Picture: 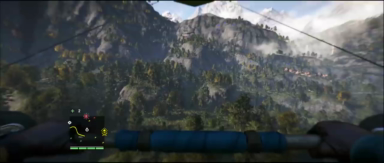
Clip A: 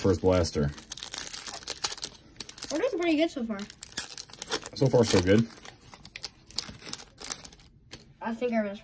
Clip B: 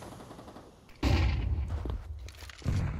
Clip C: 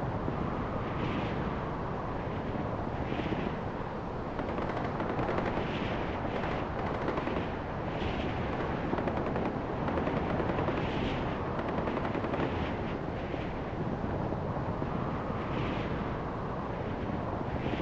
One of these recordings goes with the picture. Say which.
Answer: C